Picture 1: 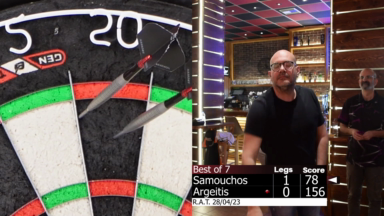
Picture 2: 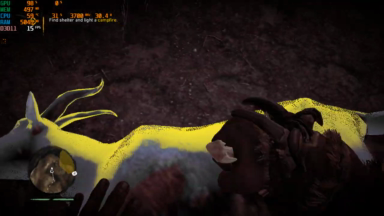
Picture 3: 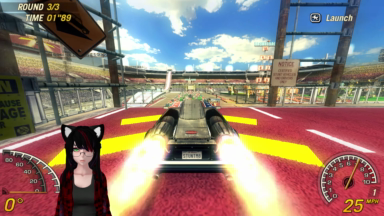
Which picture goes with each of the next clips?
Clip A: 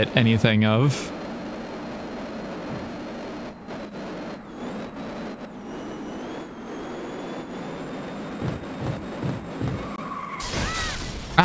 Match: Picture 3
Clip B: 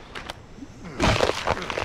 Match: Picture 2